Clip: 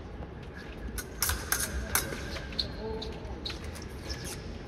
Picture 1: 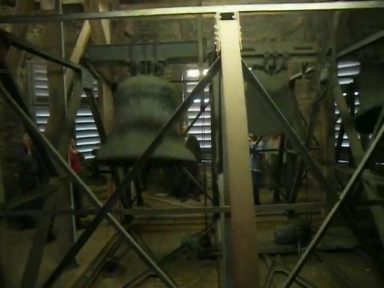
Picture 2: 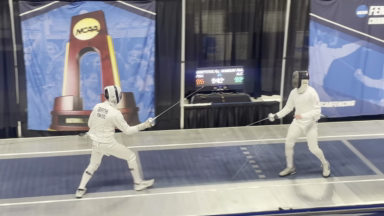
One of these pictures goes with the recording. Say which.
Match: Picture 2